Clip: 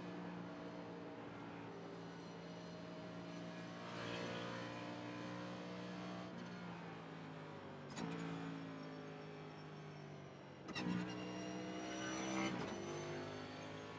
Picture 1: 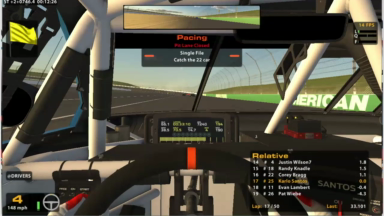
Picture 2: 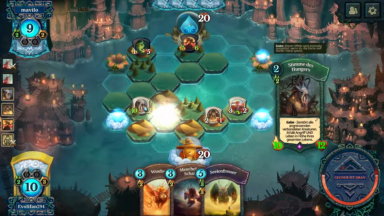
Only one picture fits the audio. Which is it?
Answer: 1